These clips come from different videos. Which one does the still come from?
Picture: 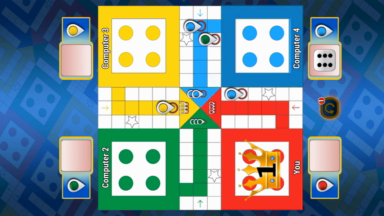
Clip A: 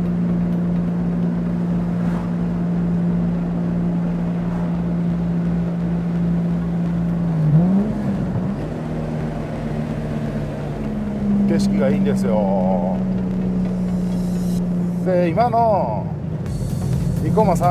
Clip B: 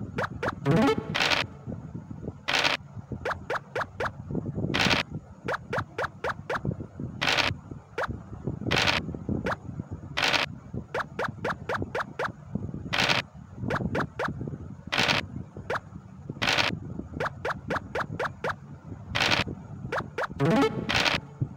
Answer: B